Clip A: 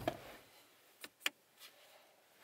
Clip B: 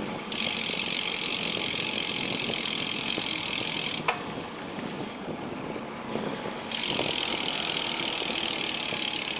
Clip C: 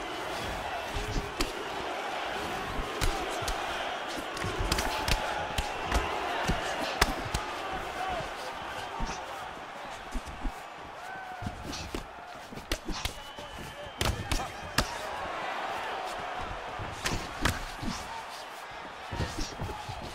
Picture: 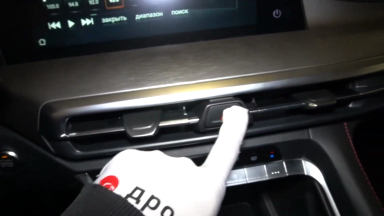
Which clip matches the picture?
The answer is A